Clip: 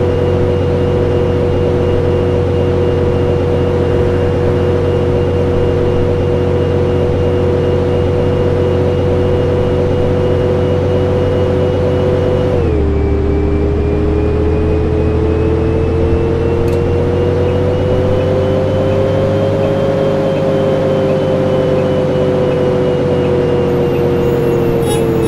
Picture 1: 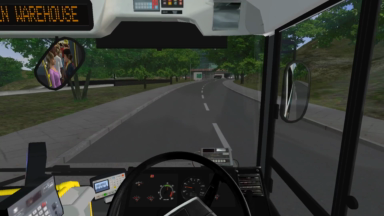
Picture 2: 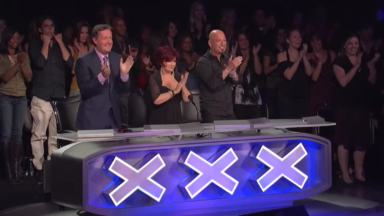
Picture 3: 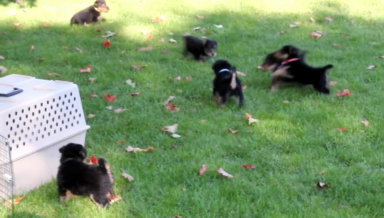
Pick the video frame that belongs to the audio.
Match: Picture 1